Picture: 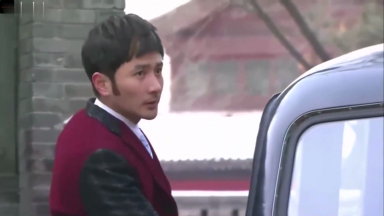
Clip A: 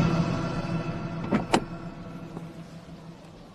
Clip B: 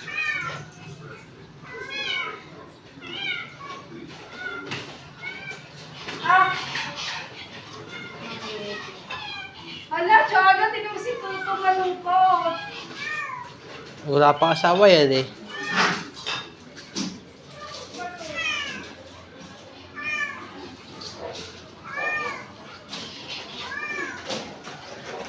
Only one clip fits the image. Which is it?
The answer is A